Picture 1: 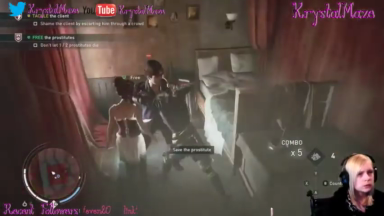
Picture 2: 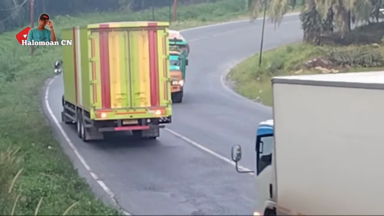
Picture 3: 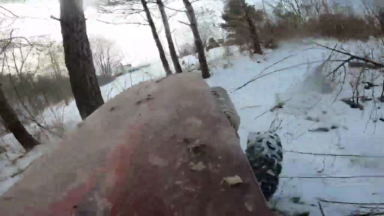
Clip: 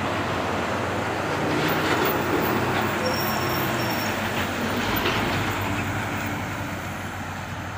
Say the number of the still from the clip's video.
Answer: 2